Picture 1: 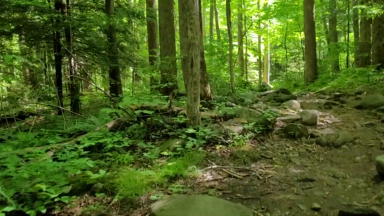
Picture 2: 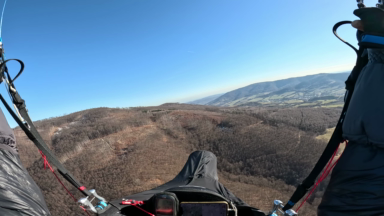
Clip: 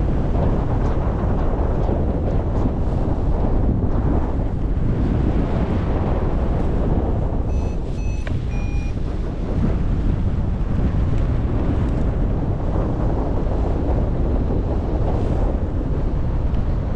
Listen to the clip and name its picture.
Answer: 2